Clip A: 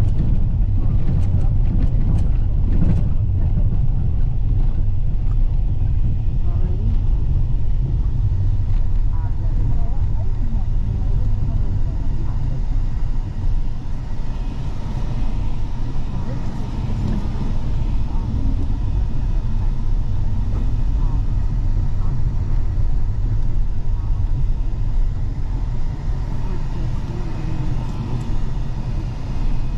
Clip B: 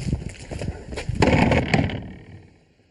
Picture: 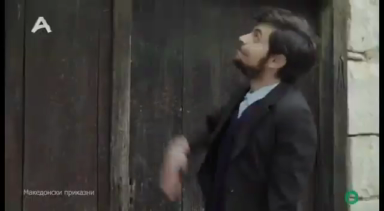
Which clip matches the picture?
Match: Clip B